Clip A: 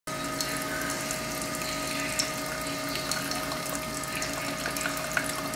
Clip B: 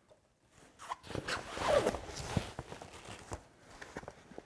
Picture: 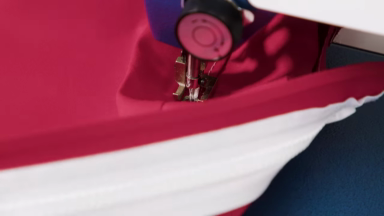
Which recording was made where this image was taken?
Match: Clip B